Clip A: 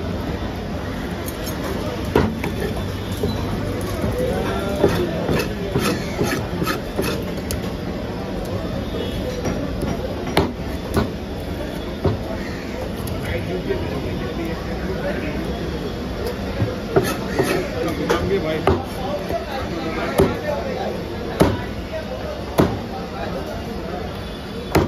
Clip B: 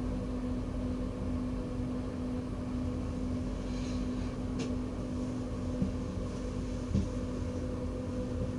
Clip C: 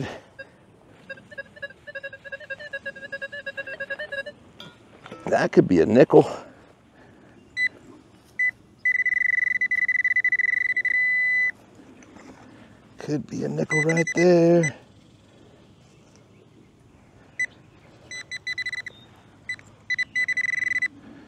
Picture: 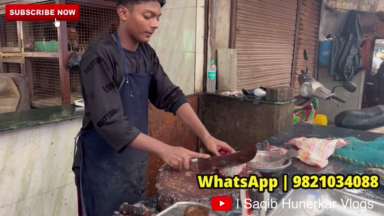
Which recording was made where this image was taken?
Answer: A